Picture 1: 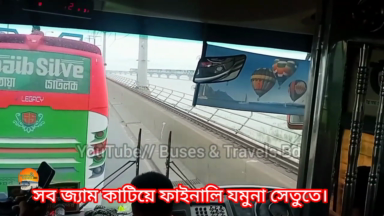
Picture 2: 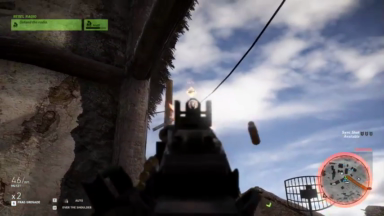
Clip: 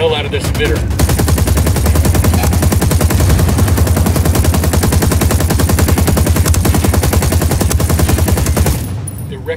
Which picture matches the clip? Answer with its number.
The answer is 2